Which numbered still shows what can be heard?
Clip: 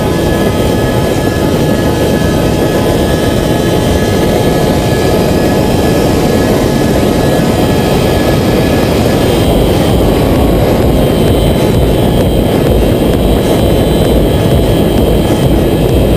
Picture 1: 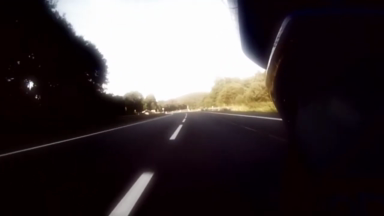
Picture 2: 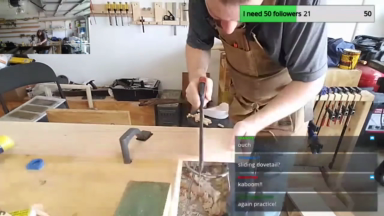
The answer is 1